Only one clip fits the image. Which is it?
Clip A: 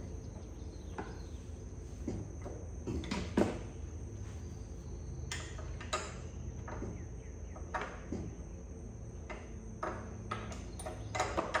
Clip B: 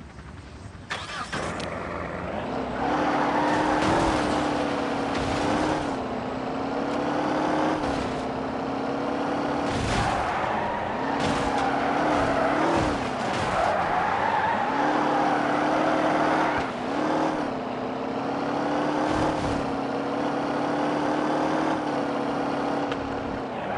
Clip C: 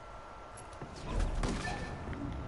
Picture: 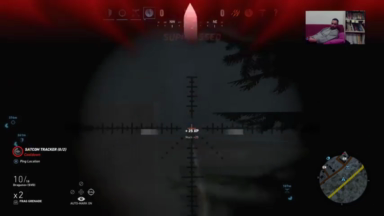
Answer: C